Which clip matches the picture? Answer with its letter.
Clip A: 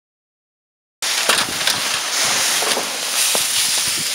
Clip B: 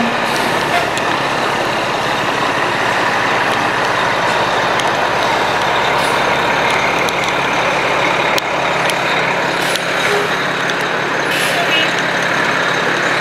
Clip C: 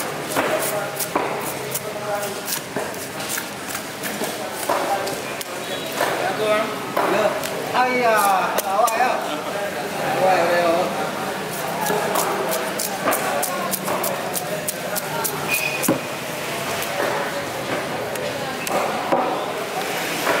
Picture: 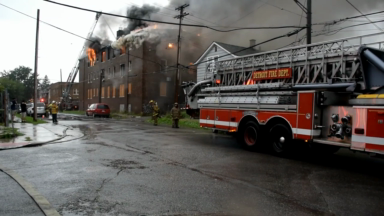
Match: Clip B